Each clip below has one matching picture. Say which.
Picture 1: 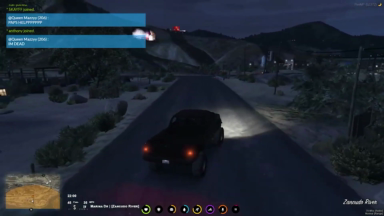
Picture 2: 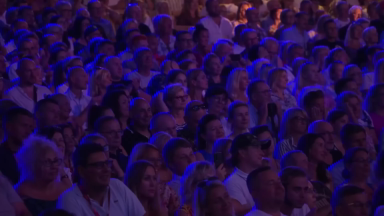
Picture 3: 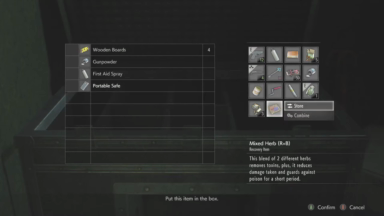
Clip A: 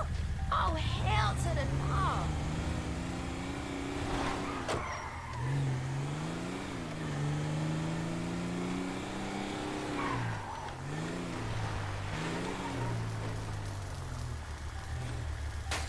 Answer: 1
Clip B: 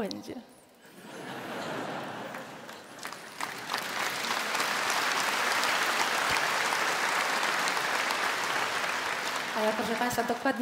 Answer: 2